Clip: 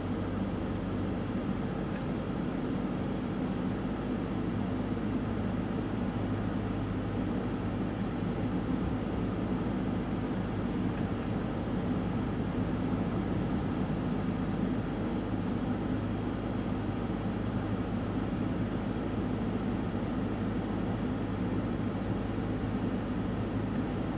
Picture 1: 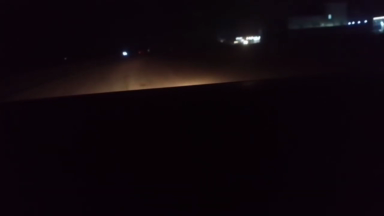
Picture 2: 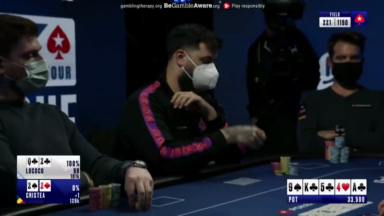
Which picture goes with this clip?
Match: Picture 1